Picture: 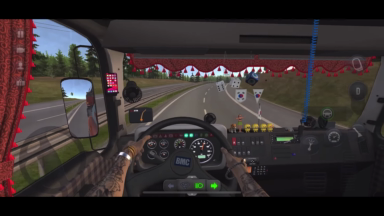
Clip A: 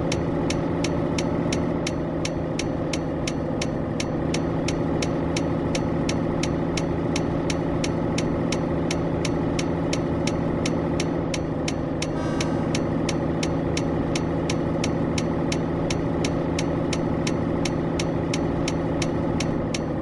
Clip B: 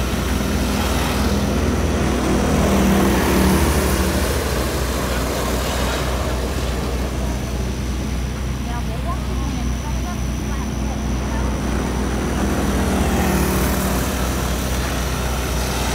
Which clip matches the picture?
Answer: A